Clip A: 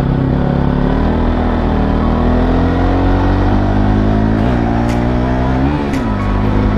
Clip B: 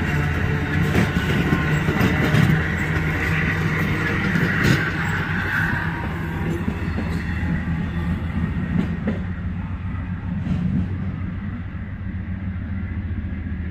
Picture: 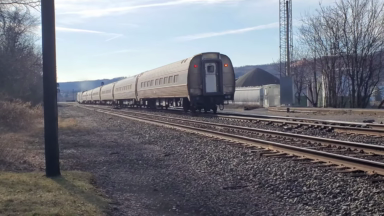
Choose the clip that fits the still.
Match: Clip B